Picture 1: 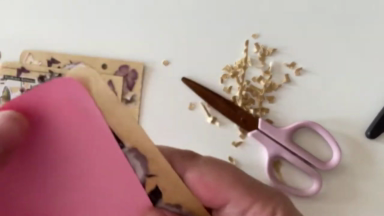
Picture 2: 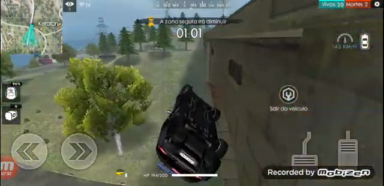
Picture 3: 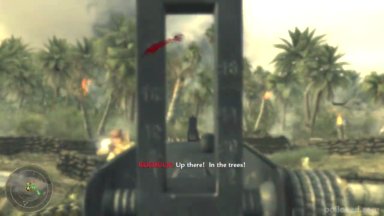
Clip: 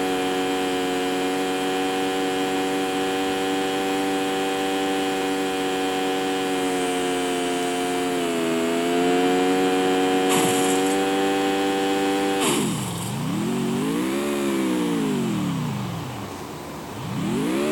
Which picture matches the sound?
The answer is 2